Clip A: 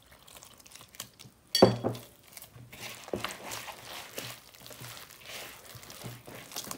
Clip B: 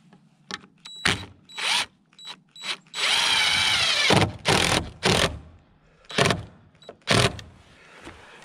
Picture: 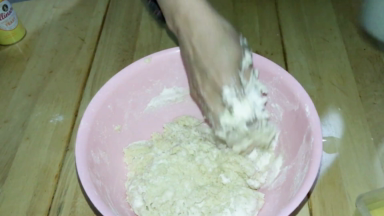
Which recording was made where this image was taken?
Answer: A